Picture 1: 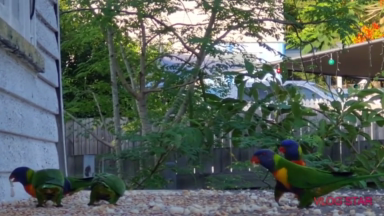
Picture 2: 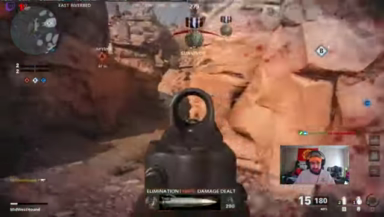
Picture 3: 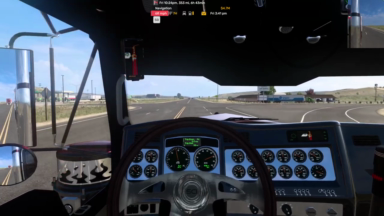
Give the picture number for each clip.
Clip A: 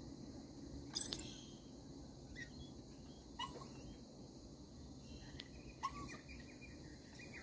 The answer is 1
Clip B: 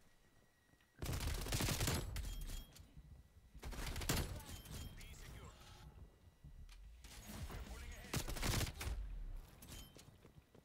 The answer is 2